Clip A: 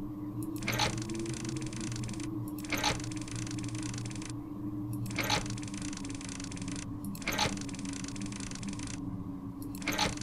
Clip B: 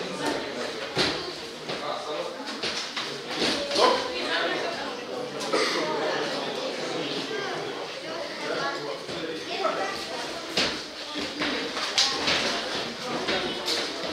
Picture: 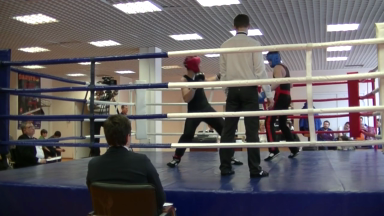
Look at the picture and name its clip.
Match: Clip B